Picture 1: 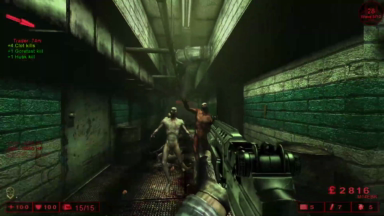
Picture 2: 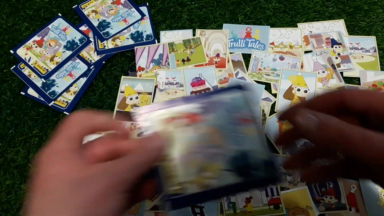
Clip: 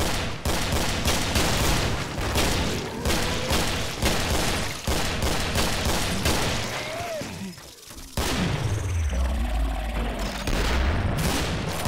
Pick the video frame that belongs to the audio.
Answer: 1